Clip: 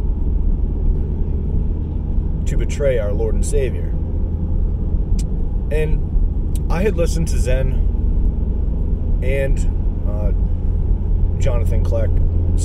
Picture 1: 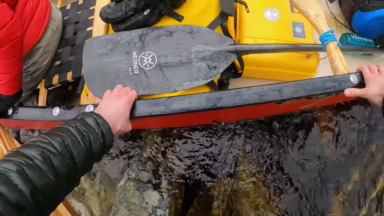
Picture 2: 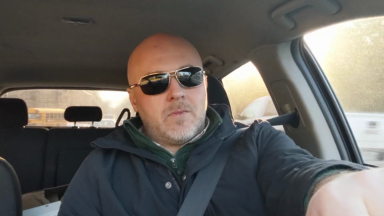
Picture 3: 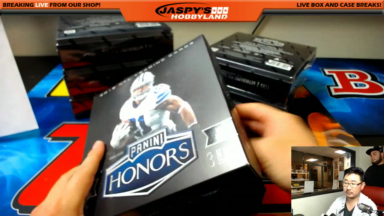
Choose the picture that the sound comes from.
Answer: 2